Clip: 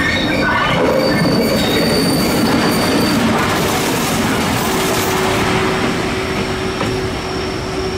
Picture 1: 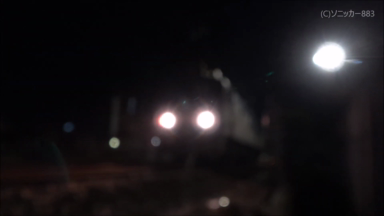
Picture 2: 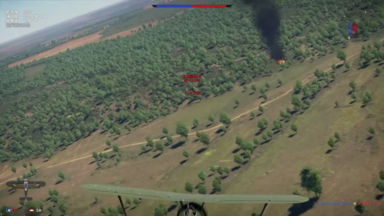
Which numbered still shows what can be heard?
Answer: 1